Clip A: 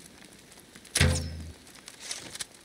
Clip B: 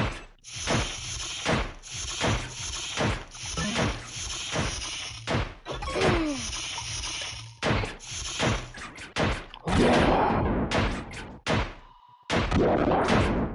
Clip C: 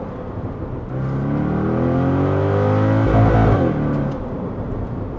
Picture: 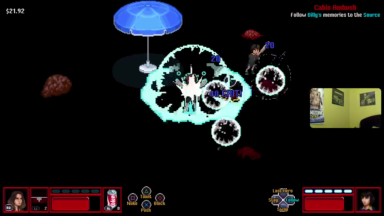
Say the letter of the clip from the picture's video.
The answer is B